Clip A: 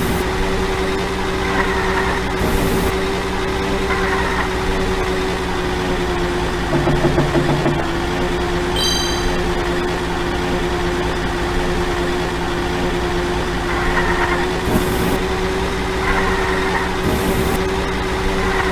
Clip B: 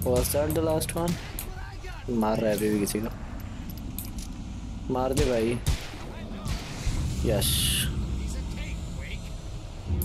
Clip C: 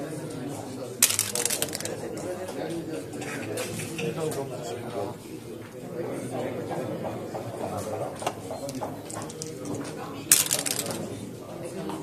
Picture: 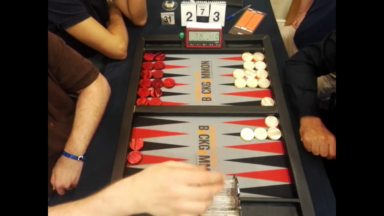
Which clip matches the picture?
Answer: C